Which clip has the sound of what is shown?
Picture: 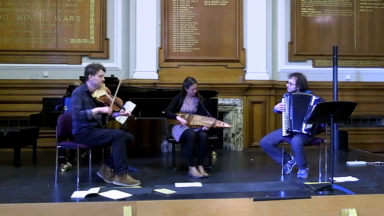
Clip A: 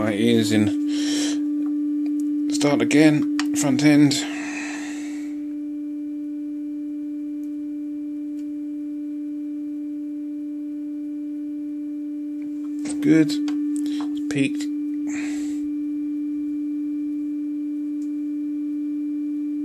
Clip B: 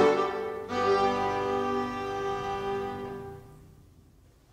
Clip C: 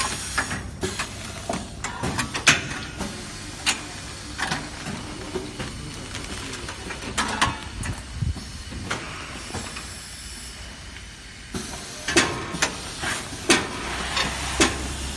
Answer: B